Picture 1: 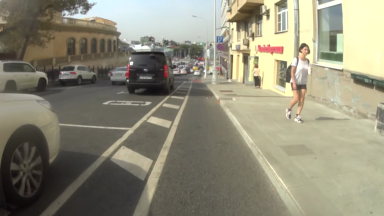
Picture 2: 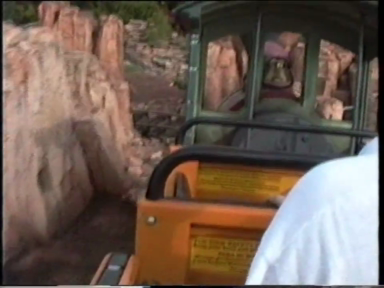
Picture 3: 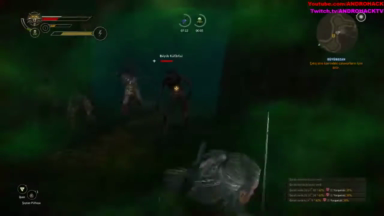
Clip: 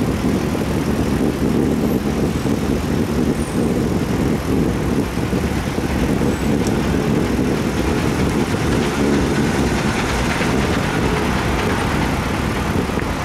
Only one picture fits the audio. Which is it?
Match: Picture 1